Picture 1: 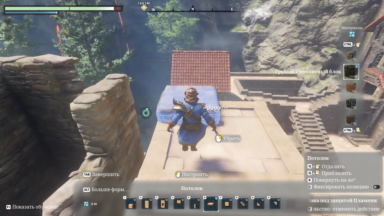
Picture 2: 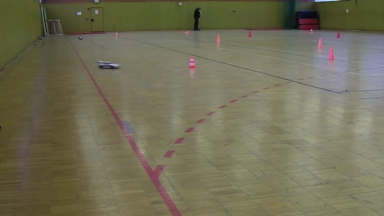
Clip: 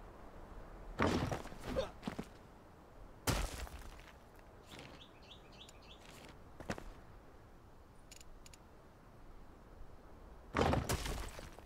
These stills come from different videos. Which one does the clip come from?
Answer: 1